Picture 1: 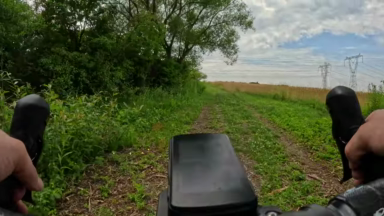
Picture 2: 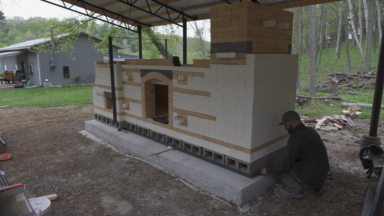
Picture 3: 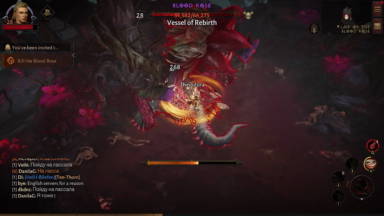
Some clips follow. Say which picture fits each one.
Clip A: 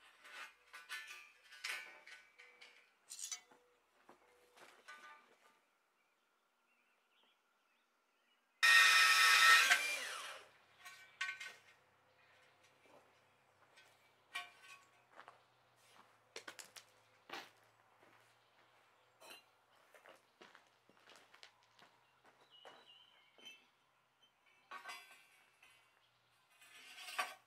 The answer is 2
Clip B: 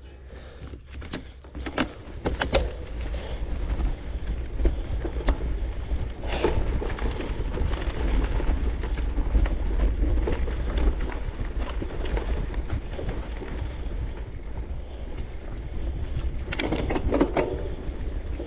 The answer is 1